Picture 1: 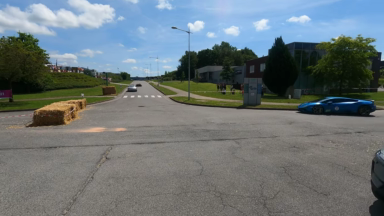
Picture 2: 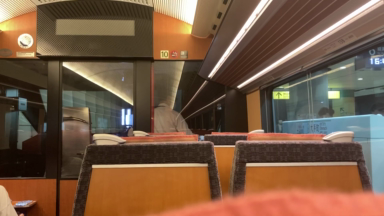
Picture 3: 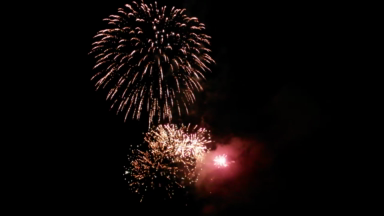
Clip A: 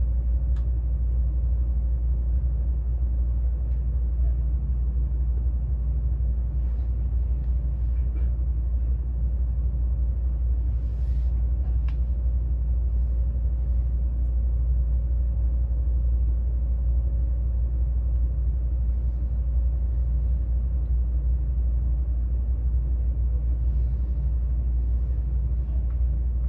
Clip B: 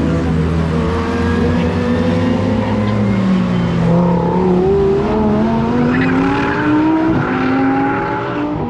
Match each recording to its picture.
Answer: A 2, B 1